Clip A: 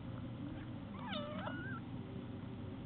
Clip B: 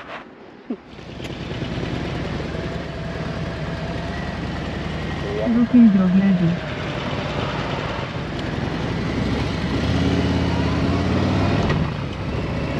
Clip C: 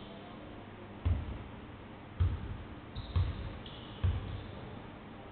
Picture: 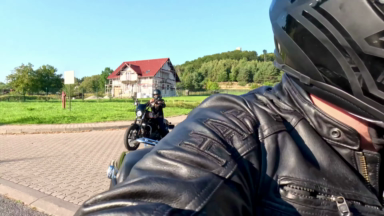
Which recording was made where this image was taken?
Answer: B